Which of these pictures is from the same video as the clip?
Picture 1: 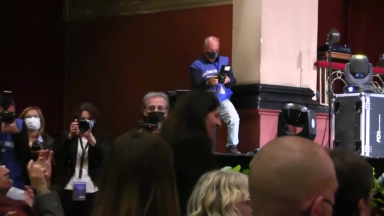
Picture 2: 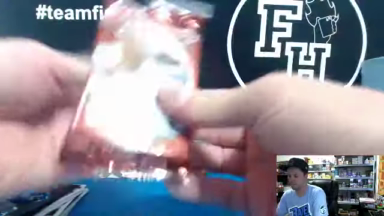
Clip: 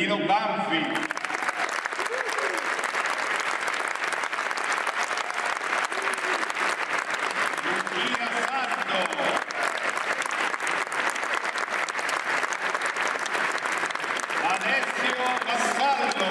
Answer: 1